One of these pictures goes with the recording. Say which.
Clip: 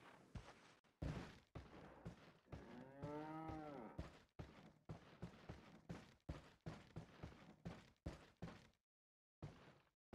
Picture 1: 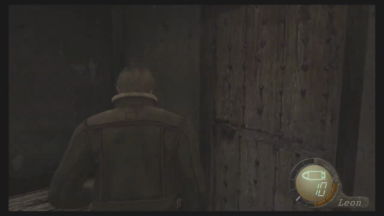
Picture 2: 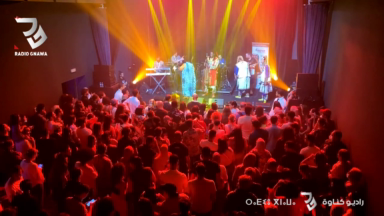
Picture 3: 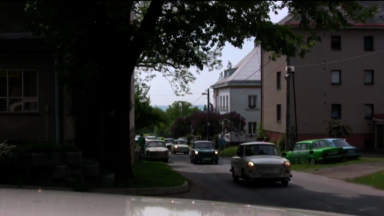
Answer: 1